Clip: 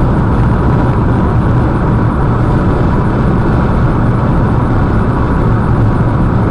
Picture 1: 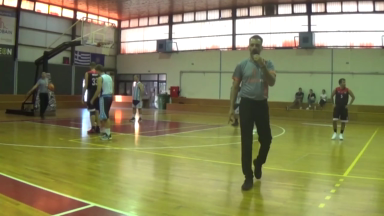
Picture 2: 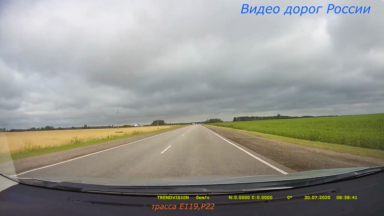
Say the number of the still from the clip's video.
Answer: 2